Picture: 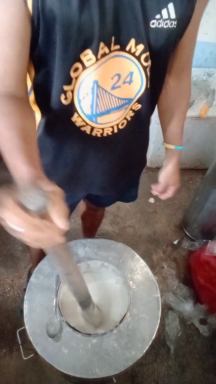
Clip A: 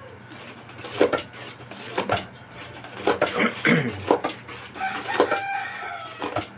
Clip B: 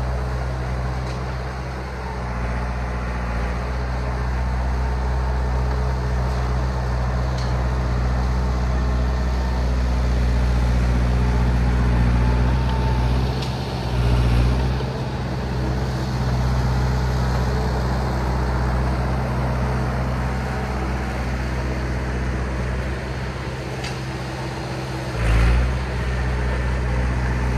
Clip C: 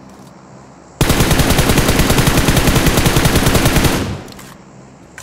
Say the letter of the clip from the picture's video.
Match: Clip A